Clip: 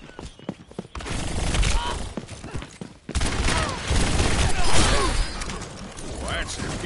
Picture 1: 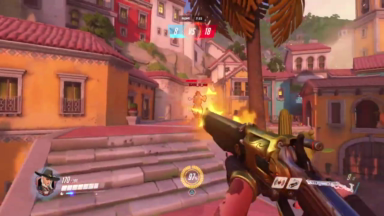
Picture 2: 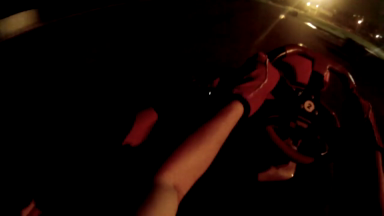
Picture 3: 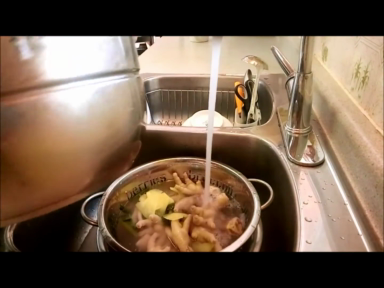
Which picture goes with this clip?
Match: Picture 1